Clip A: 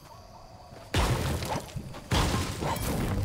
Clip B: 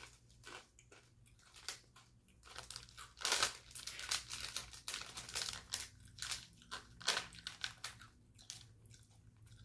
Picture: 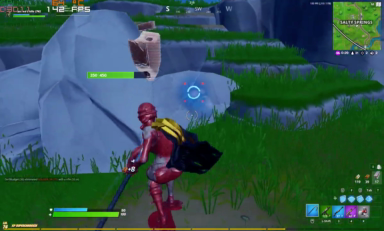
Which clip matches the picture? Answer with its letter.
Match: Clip A